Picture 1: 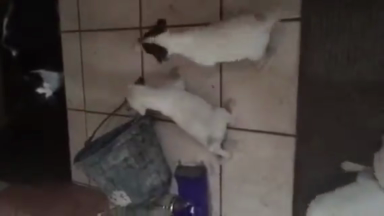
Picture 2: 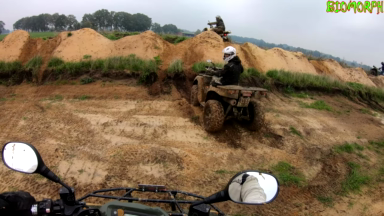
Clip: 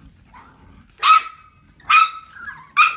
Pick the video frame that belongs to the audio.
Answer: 1